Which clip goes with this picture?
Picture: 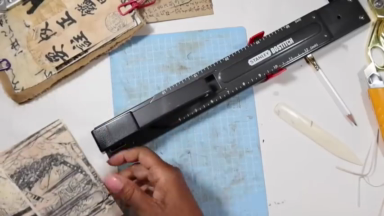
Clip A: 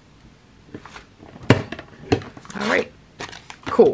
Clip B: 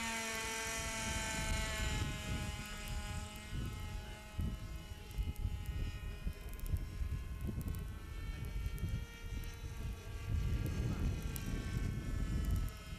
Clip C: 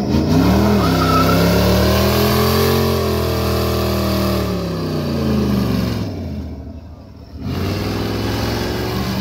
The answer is A